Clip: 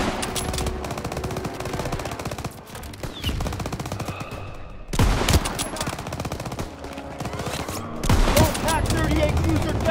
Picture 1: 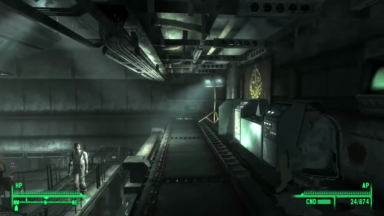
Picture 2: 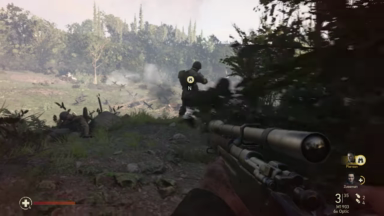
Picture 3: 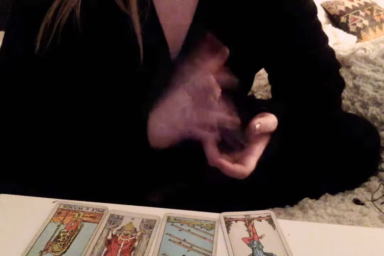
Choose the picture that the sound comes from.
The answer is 2